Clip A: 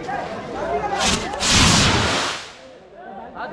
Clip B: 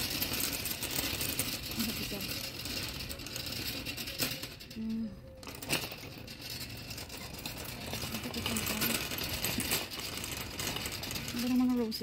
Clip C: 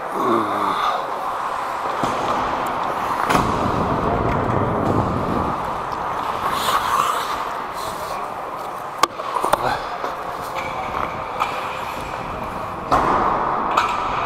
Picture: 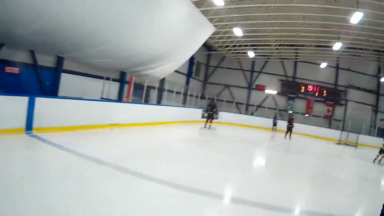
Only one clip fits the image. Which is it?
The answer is C